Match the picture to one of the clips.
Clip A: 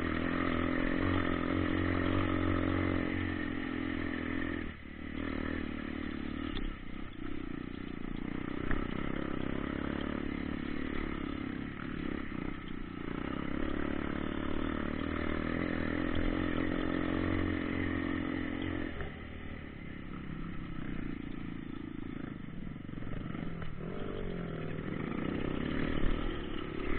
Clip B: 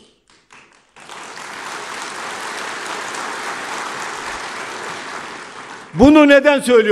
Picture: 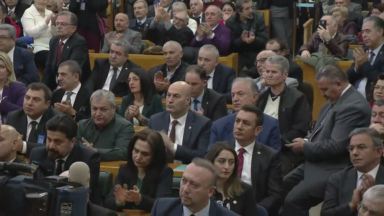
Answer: B